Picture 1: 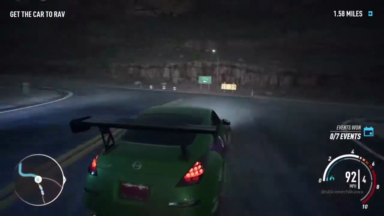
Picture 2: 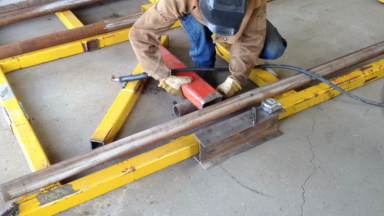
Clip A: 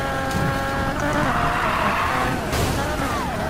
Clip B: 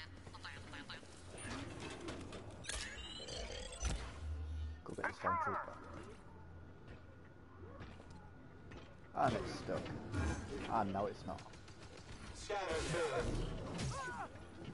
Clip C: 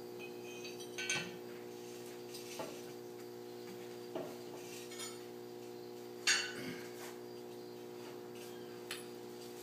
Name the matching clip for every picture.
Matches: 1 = A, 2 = C